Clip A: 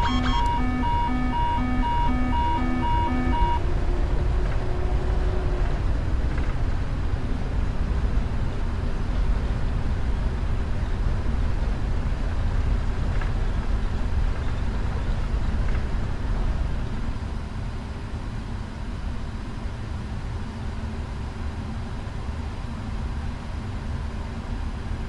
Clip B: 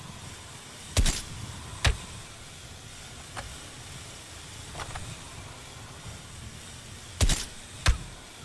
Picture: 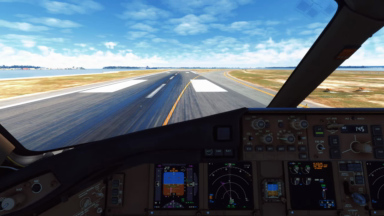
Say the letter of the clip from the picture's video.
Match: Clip A